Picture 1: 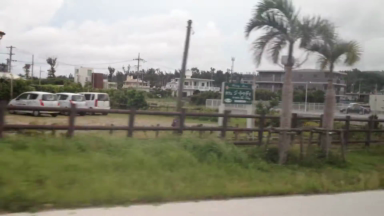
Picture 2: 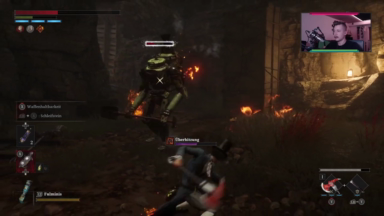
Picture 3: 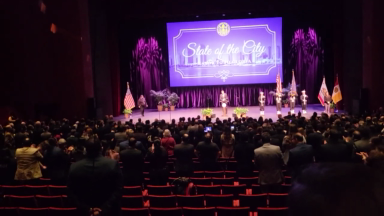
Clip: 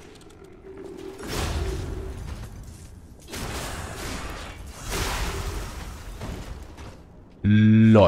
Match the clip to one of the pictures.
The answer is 2